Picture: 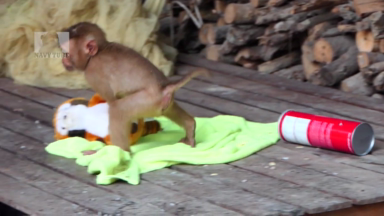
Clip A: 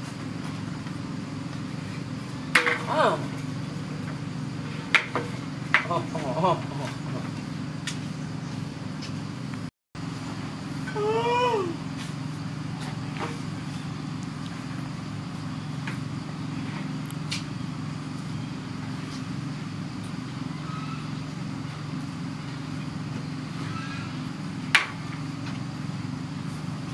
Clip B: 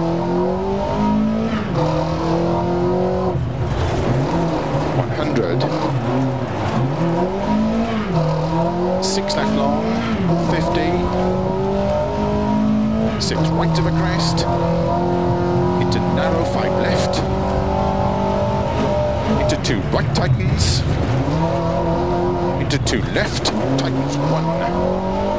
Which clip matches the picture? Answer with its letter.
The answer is A